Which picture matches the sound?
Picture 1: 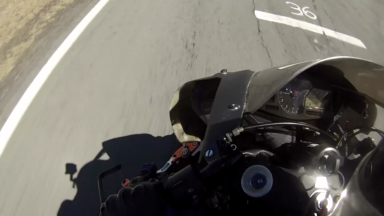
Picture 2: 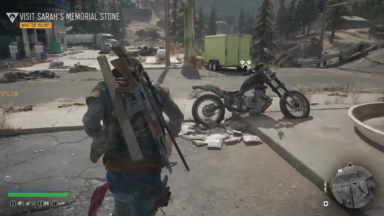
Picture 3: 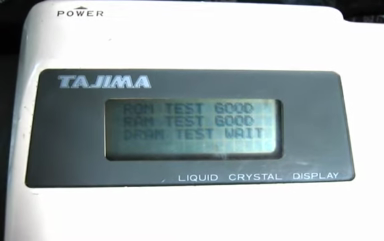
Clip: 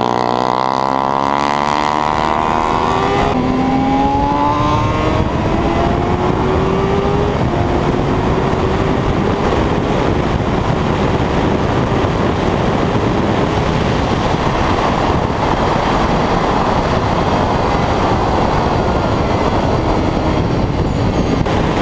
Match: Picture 1